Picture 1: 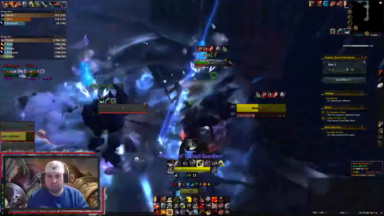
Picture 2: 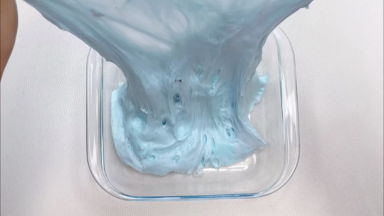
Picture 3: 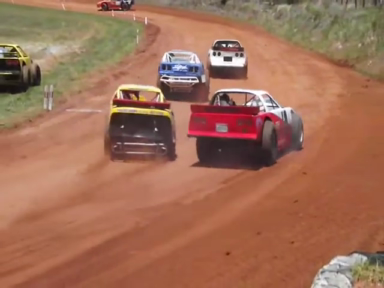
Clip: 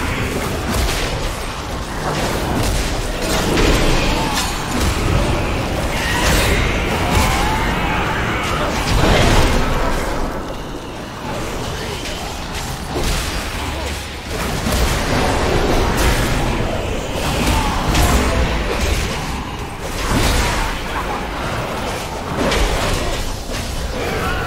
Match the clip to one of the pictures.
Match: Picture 1